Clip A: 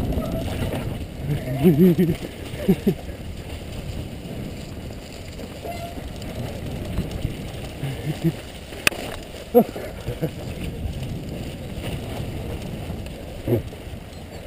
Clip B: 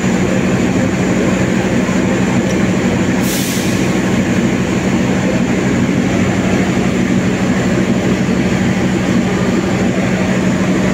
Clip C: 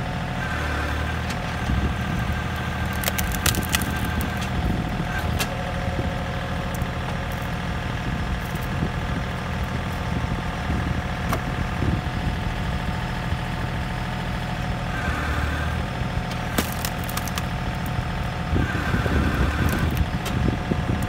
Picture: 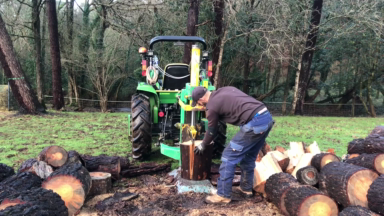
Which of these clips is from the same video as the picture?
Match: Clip C